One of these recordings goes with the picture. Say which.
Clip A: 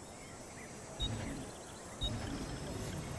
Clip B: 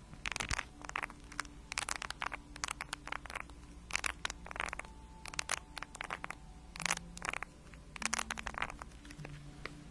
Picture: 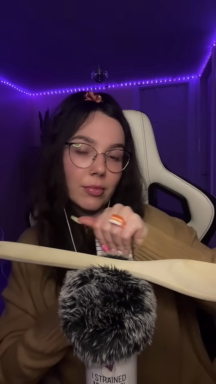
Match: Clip B